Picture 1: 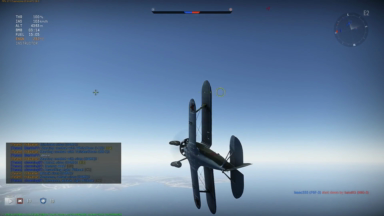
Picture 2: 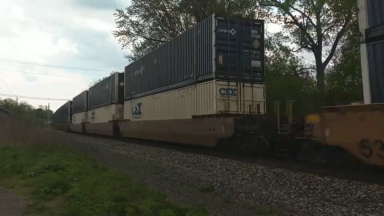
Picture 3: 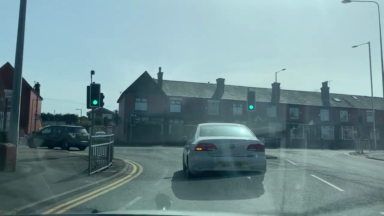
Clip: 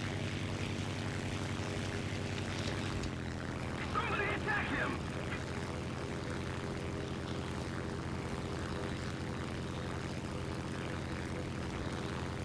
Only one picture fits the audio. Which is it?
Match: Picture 1